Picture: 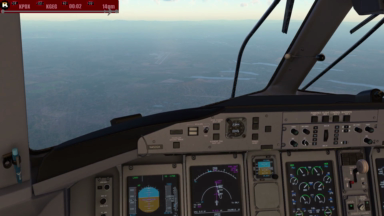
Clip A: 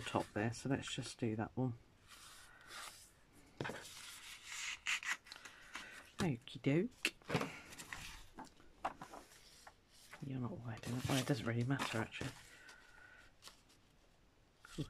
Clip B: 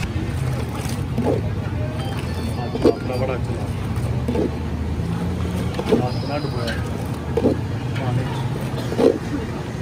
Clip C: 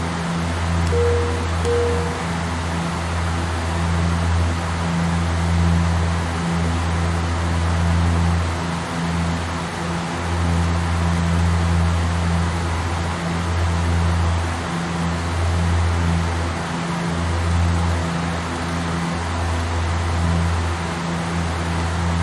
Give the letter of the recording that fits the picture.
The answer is C